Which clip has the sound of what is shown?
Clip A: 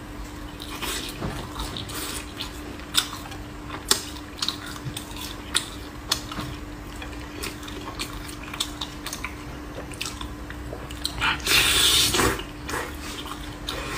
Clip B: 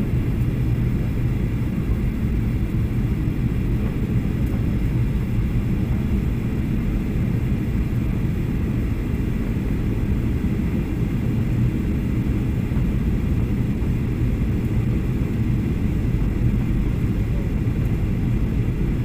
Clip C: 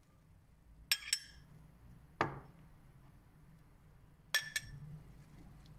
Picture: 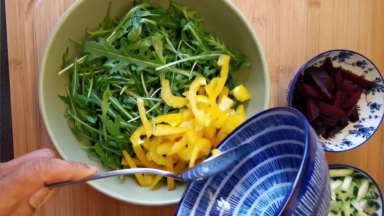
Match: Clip C